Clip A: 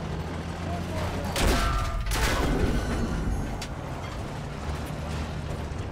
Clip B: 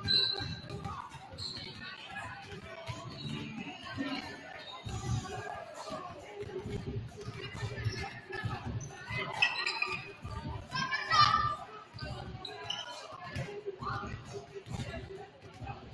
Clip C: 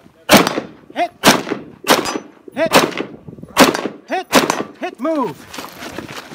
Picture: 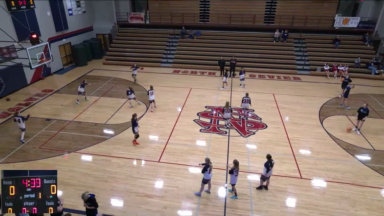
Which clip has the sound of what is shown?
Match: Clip B